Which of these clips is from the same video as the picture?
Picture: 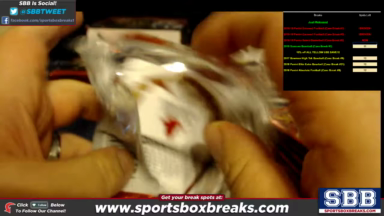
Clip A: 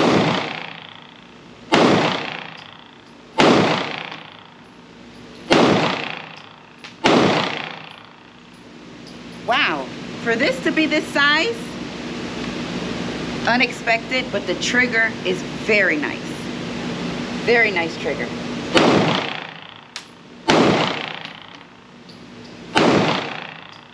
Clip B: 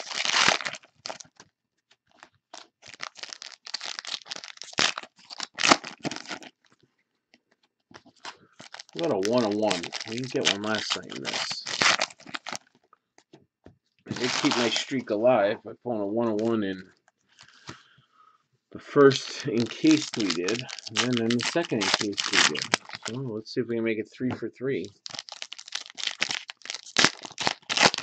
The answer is B